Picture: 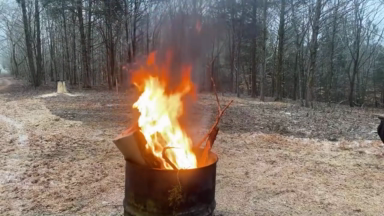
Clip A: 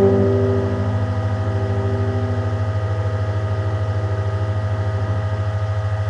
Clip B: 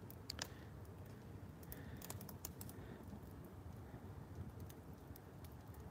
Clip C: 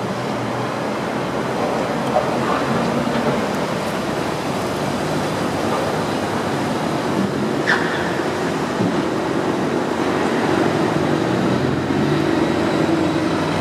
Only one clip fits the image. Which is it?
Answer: B